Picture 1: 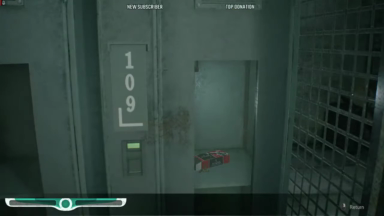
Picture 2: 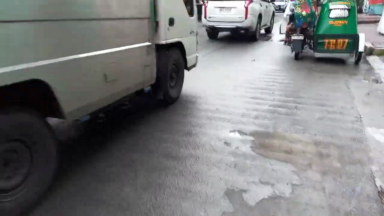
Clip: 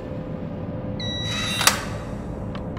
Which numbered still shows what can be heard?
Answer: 1